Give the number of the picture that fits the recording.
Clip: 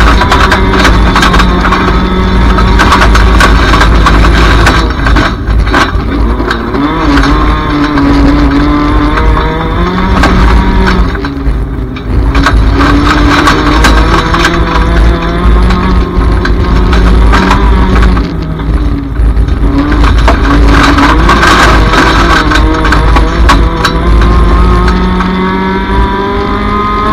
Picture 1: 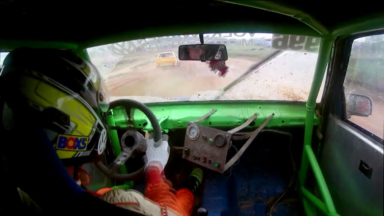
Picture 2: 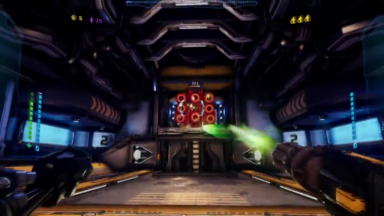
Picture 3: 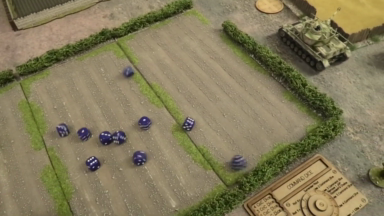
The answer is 1